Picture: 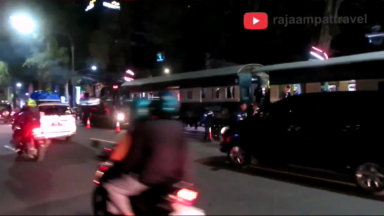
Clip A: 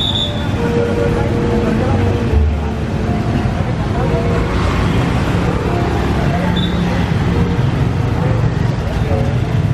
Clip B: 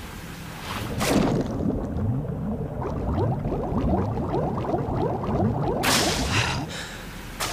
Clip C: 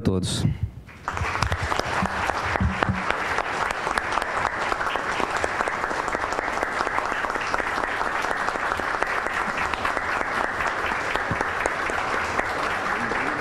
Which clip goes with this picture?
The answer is A